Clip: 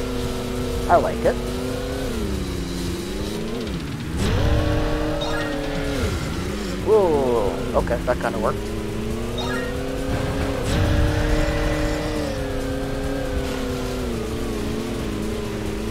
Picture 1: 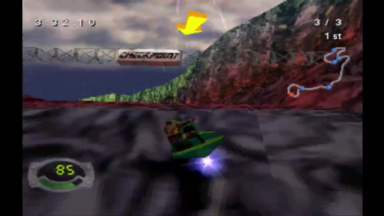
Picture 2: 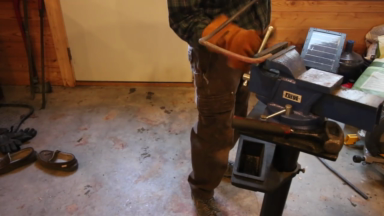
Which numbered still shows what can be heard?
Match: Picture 1